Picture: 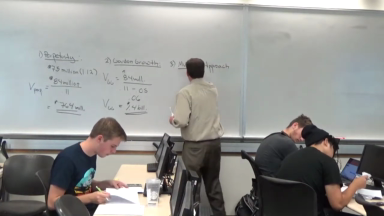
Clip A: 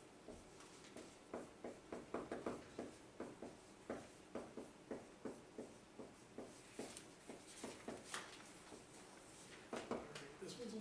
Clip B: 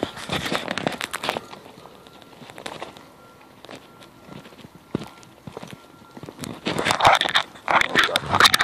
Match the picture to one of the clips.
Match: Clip A